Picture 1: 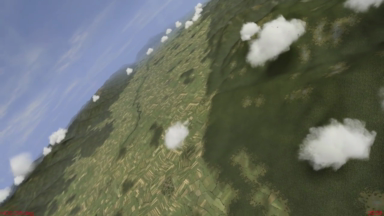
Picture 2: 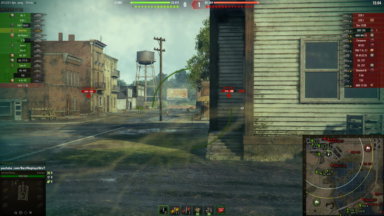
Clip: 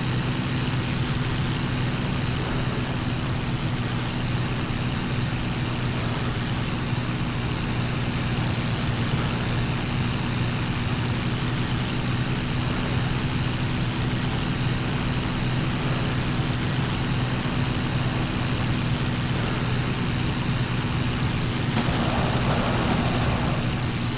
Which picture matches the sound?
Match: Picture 1